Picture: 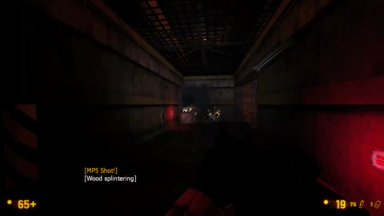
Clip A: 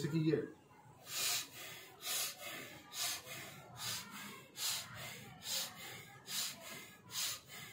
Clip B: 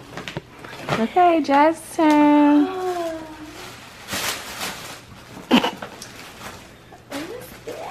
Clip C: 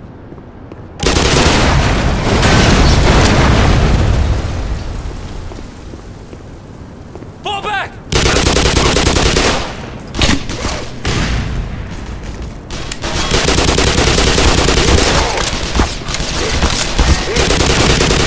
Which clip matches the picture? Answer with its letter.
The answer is C